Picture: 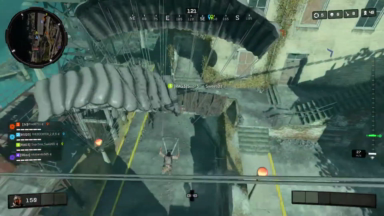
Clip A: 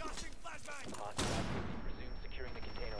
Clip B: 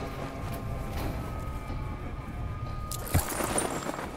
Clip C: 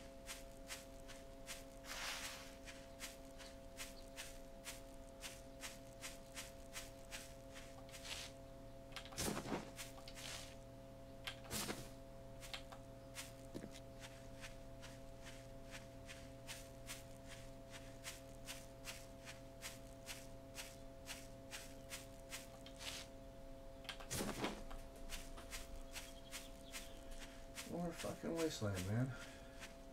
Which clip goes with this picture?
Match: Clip B